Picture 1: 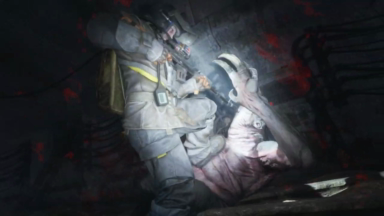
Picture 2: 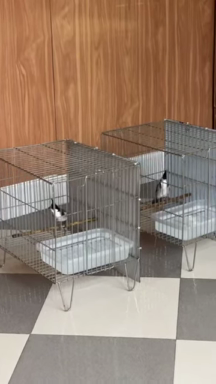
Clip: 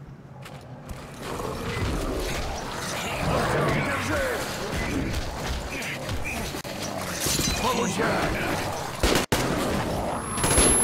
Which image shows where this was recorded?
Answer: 1